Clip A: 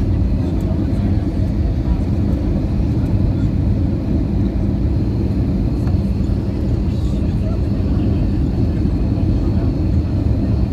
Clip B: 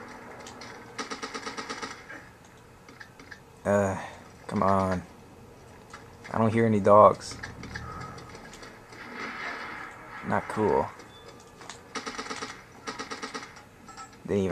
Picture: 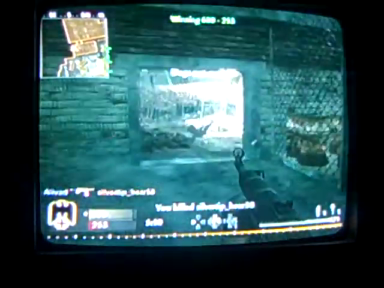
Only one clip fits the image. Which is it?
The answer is B